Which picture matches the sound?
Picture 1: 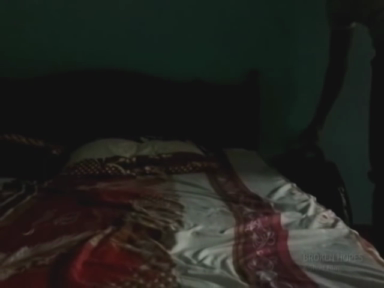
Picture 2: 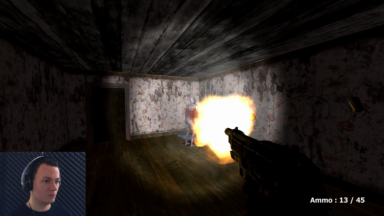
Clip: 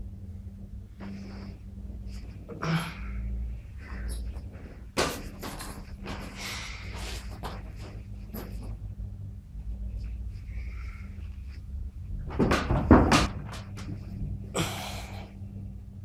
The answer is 1